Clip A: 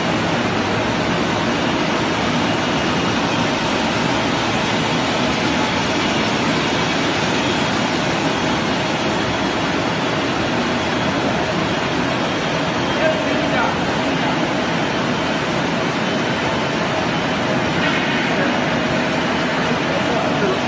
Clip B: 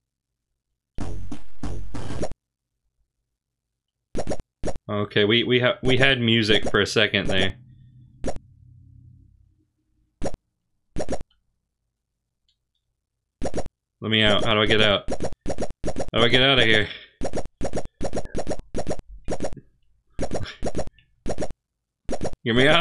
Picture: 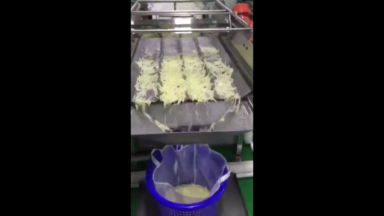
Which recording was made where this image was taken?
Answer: A